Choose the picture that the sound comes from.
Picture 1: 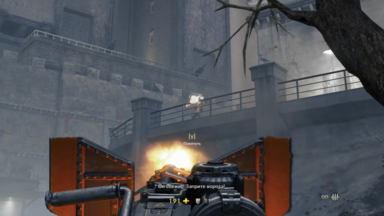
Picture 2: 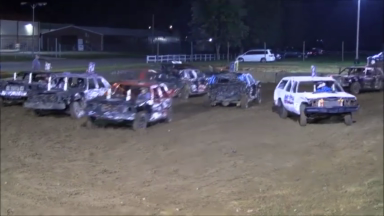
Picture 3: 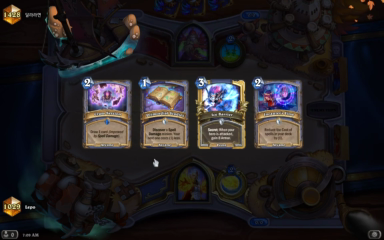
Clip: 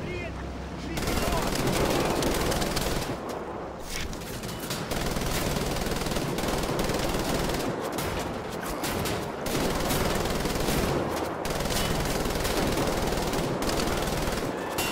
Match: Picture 1